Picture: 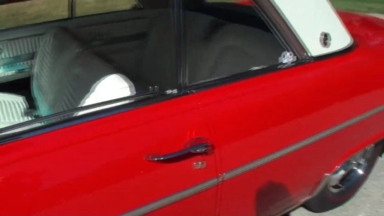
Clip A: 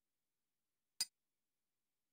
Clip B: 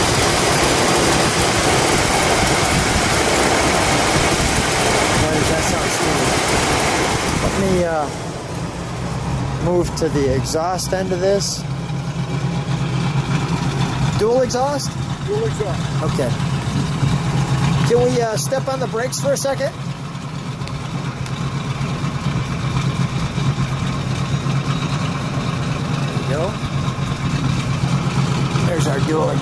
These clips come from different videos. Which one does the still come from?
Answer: B